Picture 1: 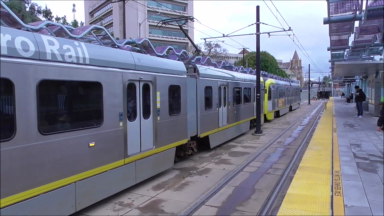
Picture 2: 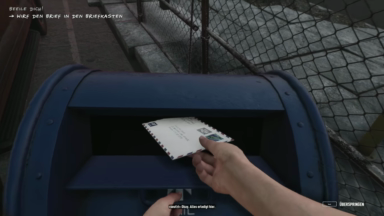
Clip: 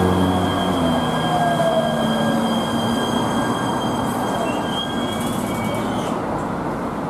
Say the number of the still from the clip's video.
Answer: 1